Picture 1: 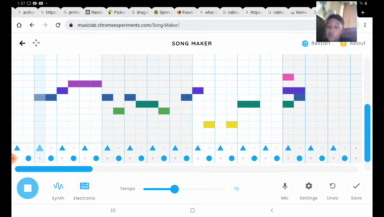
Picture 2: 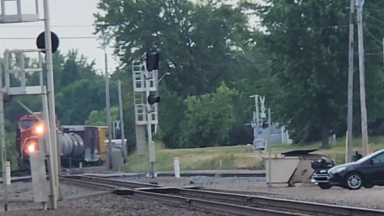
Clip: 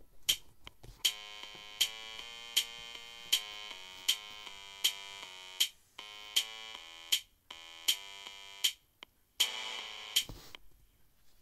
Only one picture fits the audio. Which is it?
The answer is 1